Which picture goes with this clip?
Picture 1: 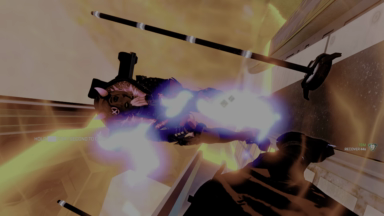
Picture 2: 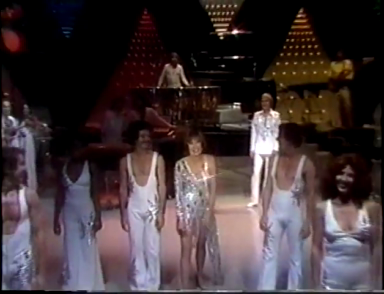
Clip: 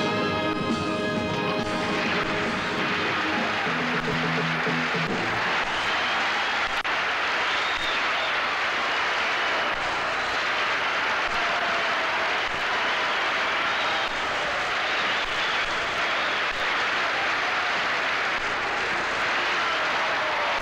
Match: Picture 2